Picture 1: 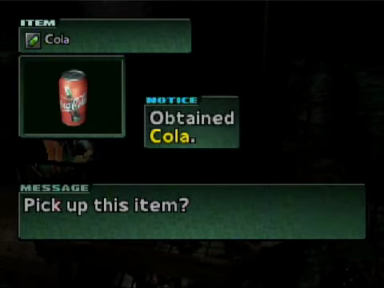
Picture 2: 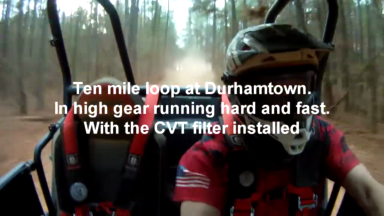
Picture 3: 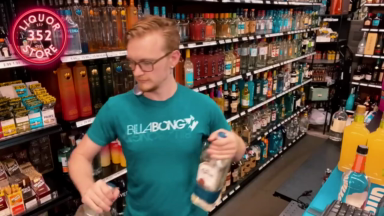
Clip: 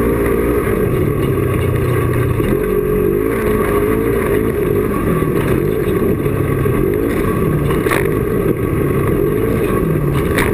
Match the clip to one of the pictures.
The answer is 2